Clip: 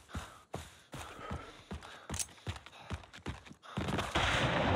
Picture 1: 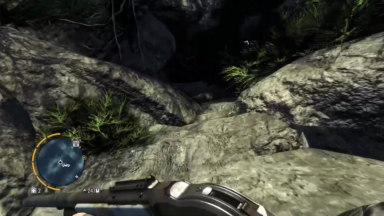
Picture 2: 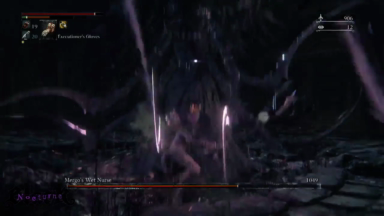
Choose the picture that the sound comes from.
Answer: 1